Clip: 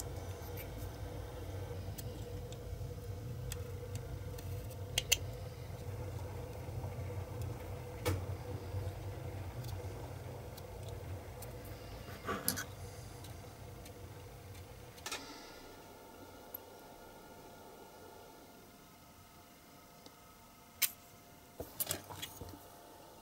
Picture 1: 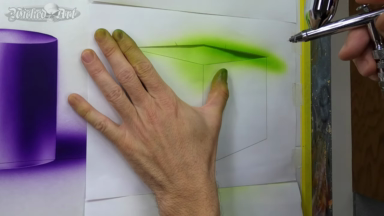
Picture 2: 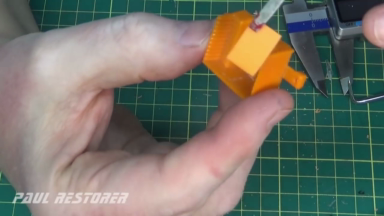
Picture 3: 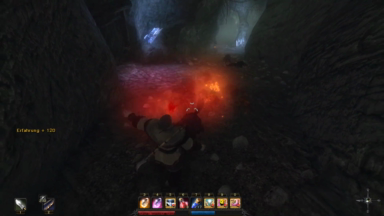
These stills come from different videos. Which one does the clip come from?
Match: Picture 2